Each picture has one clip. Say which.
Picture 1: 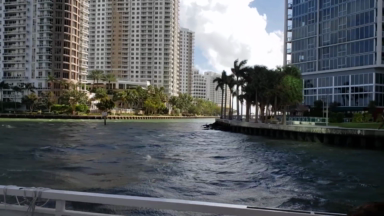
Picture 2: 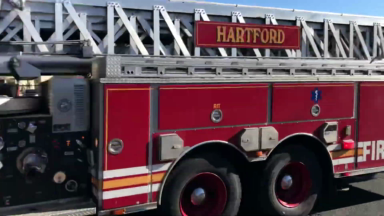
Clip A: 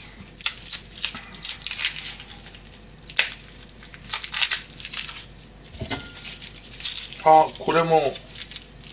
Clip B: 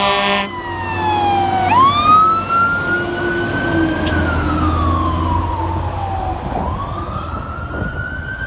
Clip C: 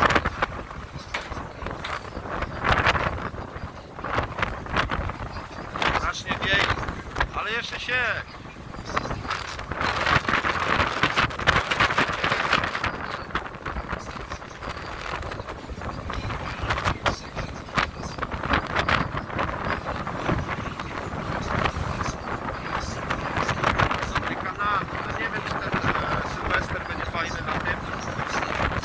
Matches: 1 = C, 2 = B